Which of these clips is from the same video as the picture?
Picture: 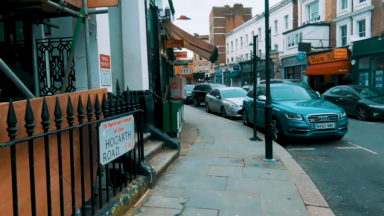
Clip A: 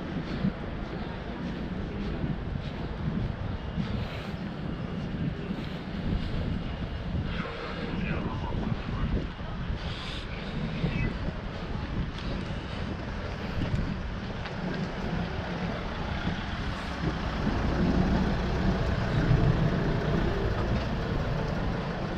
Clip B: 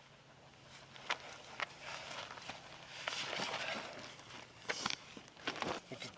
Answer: A